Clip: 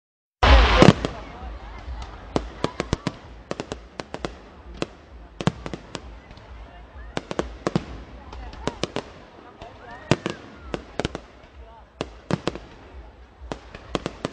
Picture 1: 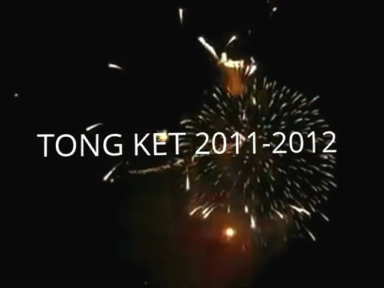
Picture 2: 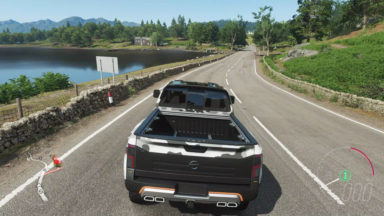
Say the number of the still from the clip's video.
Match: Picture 1